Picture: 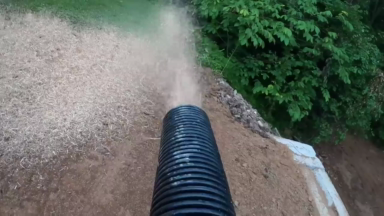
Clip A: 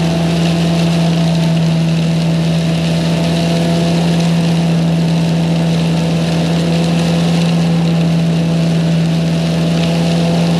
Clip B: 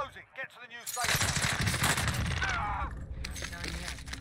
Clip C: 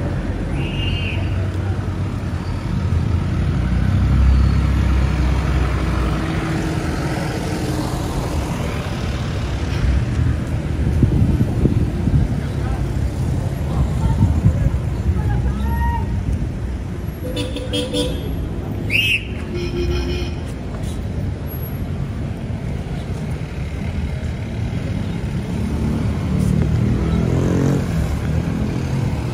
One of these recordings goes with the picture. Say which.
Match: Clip A